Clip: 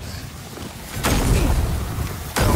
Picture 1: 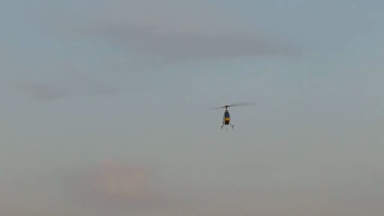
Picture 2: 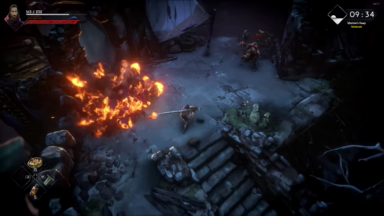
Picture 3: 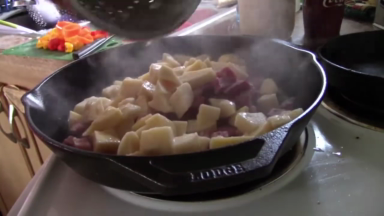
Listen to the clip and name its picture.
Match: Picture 2